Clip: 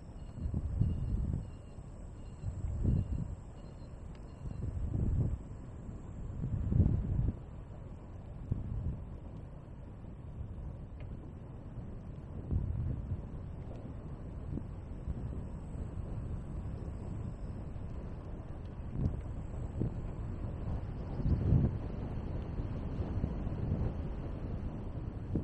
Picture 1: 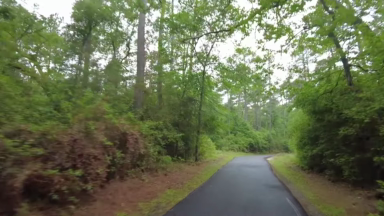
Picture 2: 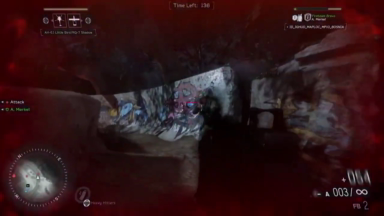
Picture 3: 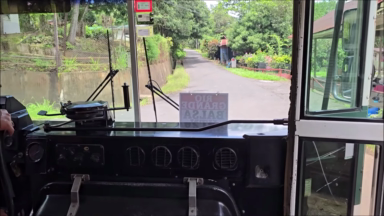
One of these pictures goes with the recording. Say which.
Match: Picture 1